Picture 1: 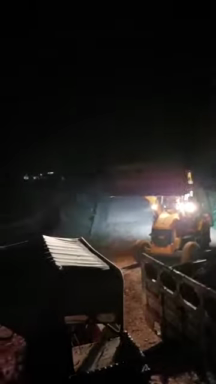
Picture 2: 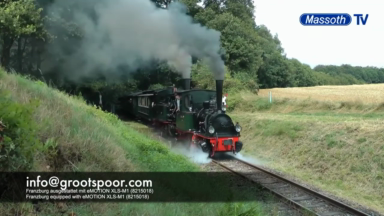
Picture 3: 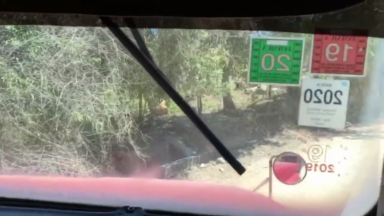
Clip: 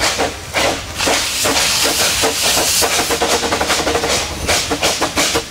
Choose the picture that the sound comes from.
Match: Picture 2